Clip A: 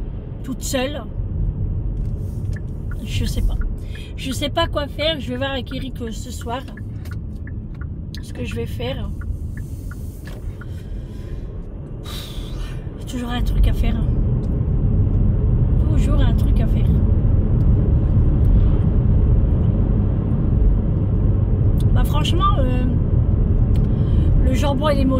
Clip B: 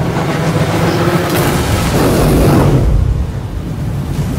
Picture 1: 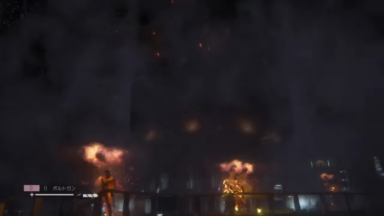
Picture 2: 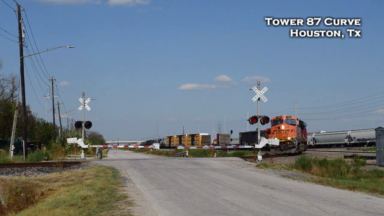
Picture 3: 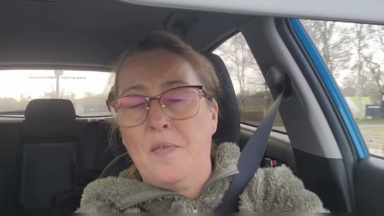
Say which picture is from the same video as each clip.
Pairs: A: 3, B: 1